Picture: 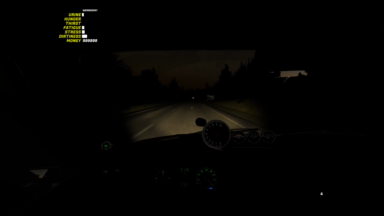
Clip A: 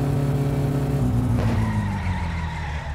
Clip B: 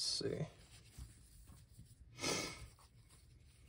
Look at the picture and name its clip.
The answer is A